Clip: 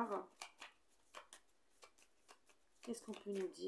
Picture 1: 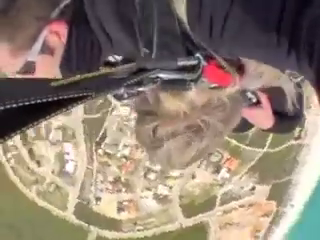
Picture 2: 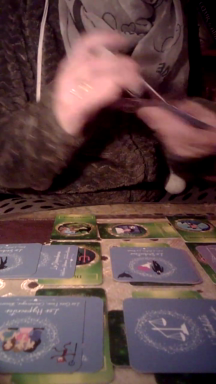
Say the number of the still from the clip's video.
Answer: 2